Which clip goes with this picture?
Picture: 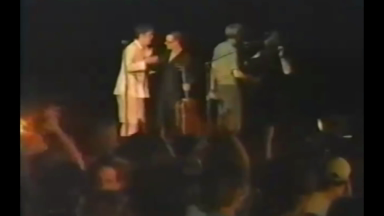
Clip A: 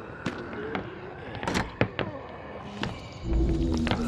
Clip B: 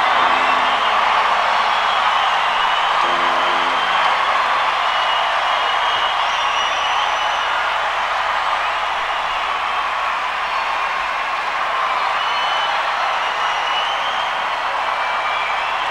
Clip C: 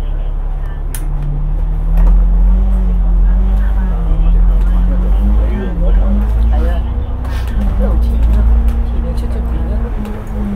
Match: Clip B